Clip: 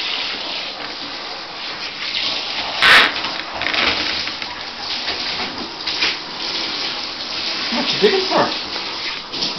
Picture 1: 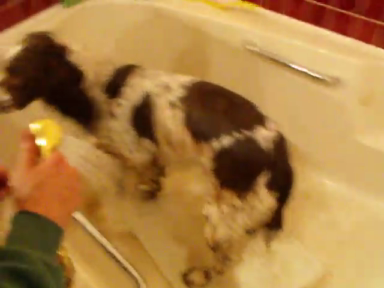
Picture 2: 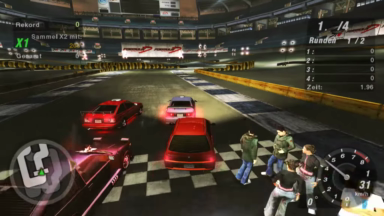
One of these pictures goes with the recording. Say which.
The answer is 1